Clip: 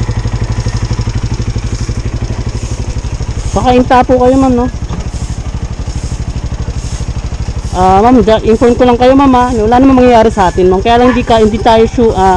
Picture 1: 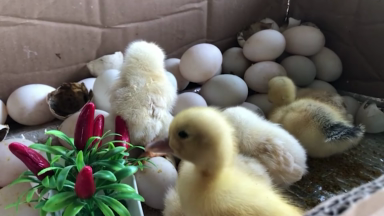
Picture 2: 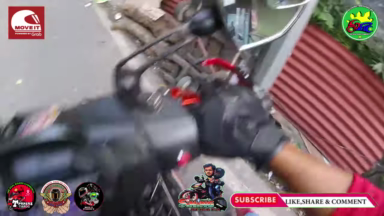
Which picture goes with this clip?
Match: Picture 2